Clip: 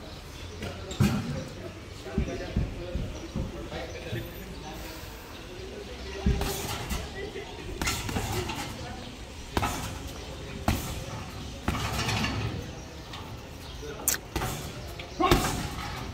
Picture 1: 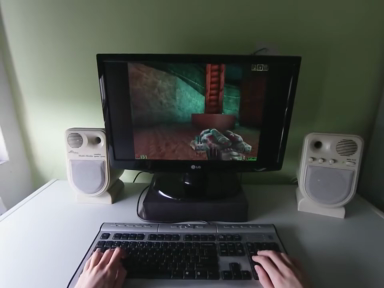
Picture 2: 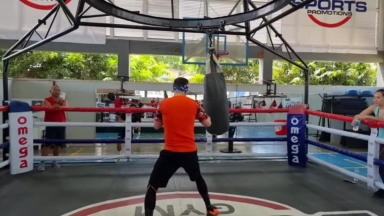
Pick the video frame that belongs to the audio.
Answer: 2